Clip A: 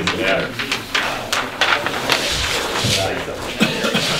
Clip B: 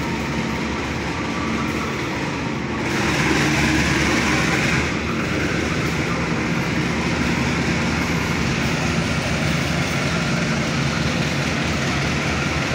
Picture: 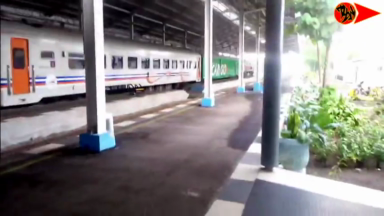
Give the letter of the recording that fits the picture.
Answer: B